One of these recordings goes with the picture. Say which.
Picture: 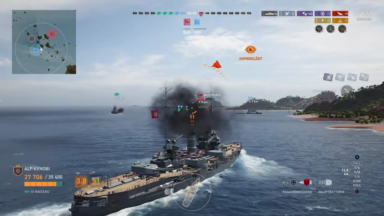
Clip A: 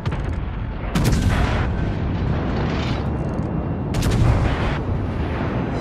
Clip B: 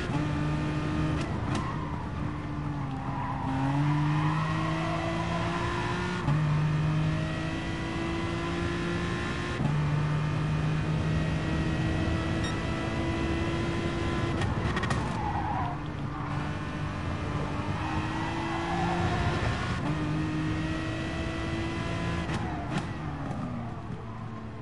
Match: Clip A